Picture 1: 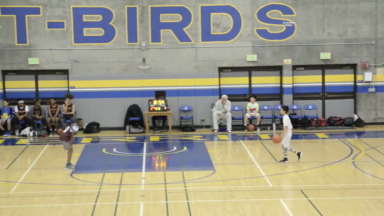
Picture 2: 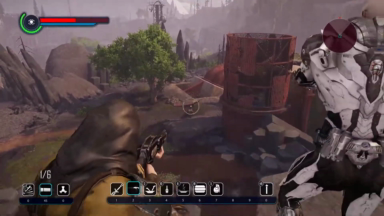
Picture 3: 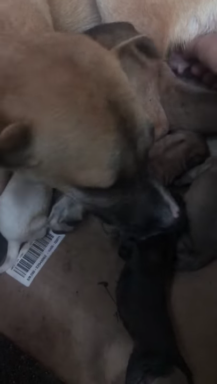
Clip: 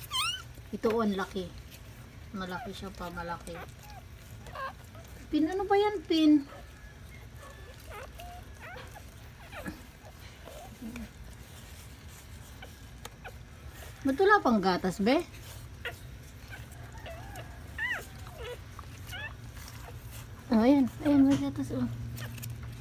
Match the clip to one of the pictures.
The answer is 3